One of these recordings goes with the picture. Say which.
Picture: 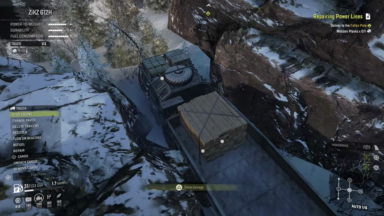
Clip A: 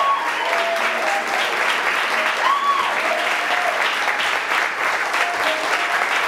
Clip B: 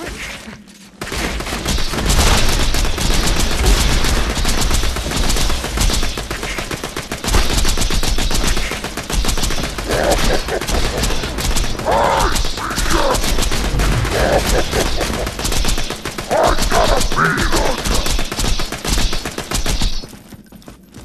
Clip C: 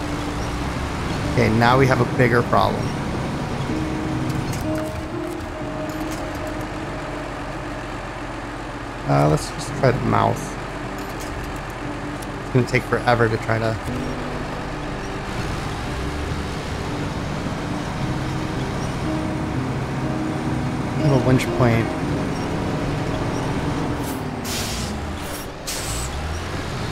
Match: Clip C